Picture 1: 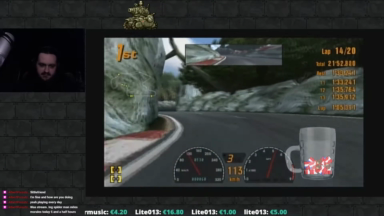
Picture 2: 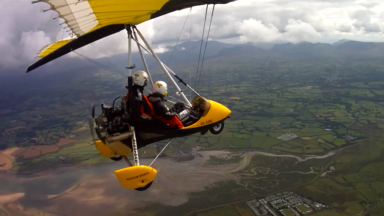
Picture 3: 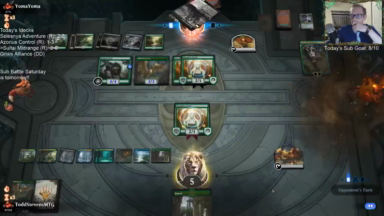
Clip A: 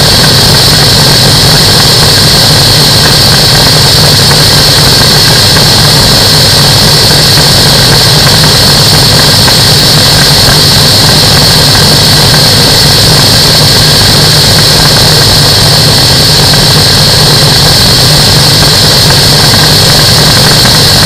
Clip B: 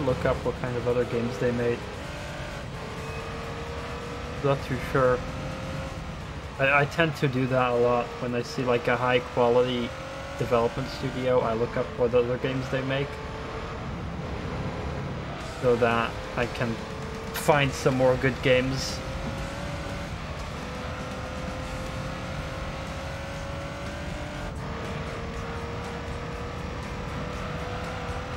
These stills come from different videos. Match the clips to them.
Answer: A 2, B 1